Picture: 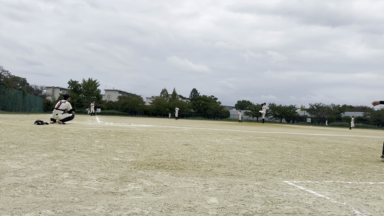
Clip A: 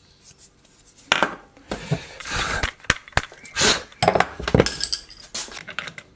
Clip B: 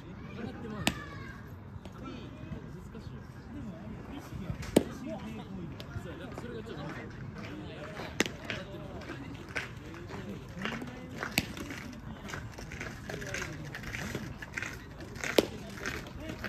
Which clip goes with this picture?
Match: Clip B